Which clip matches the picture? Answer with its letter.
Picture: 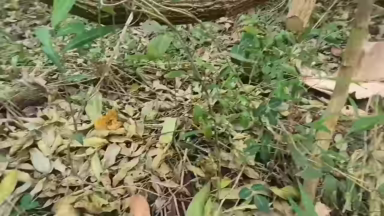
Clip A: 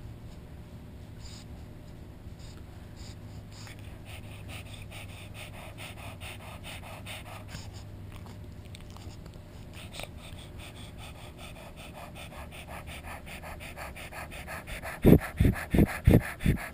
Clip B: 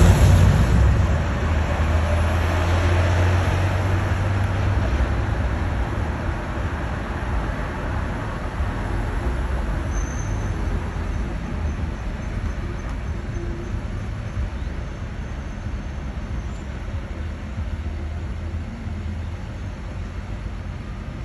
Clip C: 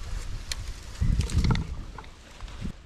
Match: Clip C